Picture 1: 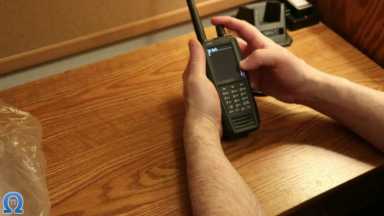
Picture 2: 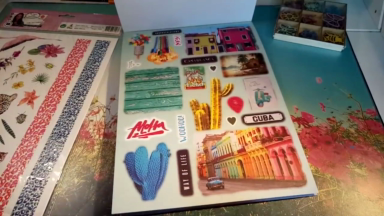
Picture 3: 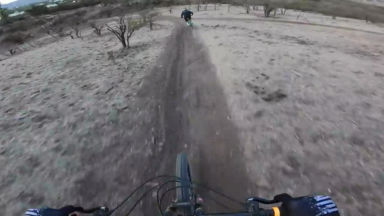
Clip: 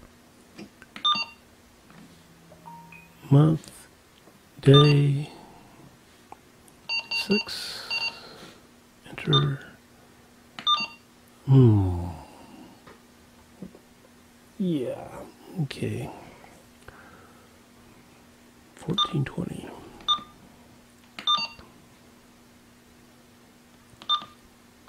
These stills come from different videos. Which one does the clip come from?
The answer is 1